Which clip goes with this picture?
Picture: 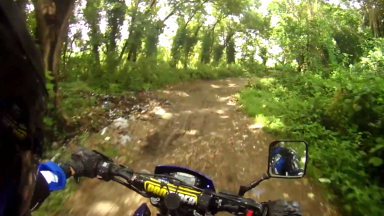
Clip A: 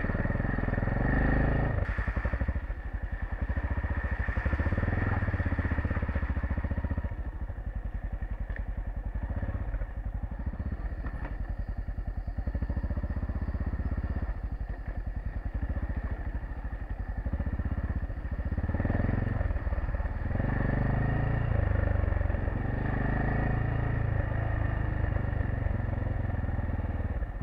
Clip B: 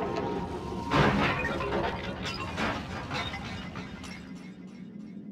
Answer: A